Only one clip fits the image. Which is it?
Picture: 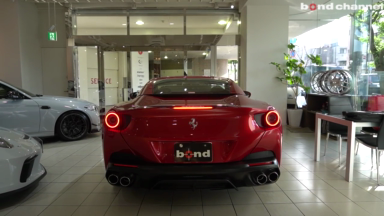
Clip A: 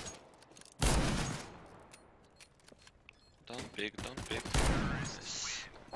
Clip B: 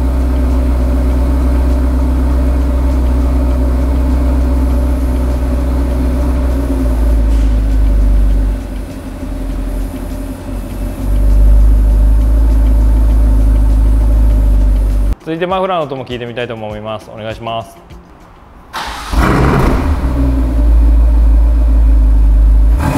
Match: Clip B